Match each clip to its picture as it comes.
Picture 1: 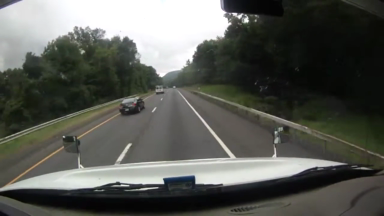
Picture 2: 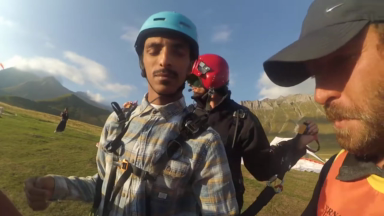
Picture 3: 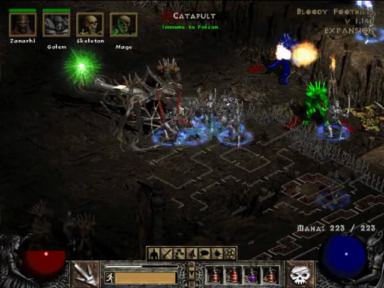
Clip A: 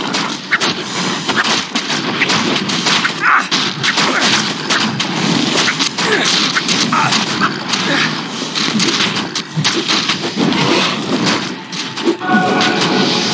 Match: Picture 3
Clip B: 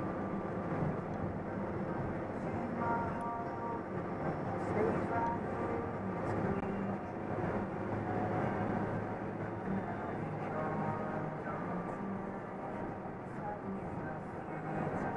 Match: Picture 1